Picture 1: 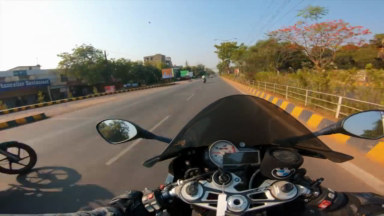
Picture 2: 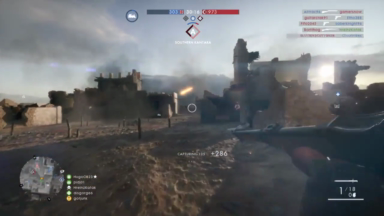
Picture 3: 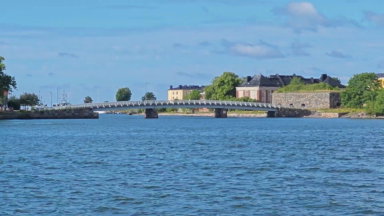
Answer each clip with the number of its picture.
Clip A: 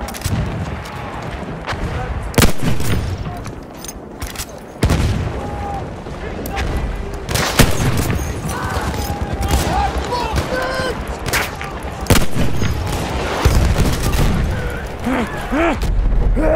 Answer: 2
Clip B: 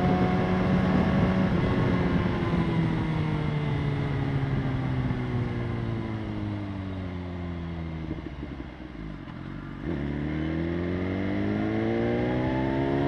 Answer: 1